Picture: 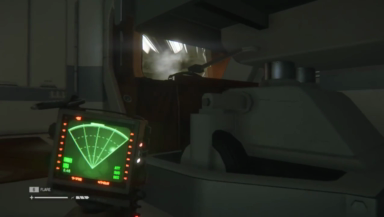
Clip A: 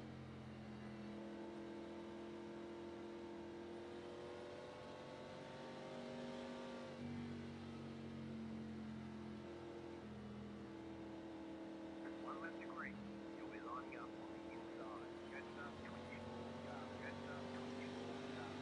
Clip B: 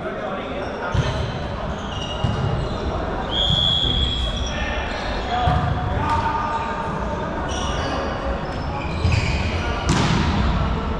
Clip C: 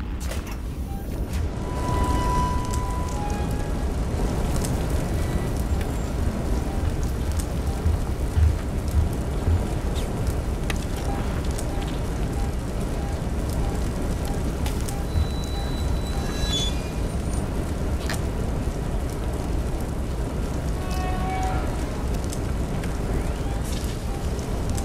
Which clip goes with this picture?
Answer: C